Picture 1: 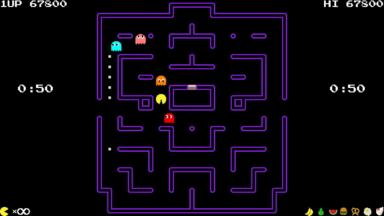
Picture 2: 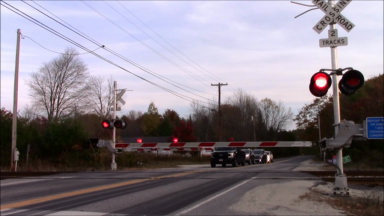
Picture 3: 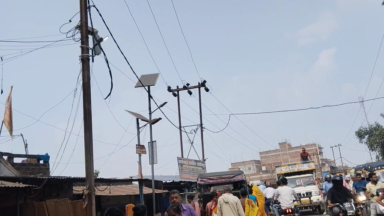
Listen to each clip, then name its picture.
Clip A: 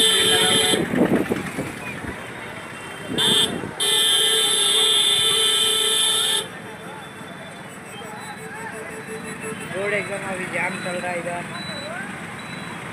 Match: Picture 3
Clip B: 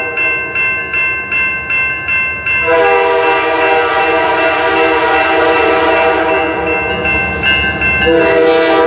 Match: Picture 2